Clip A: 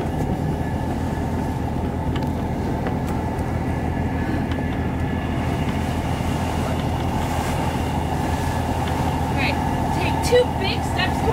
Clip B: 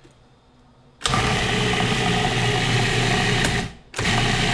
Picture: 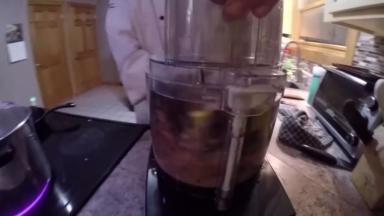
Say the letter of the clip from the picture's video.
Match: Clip B